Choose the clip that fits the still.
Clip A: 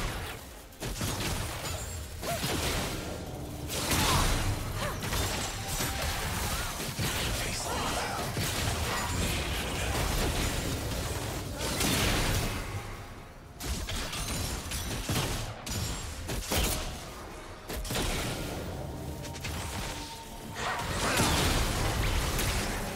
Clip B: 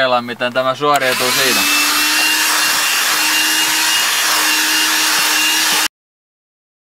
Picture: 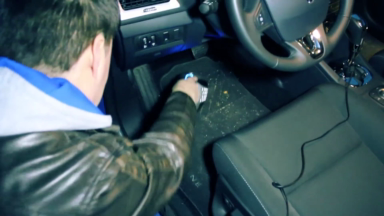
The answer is B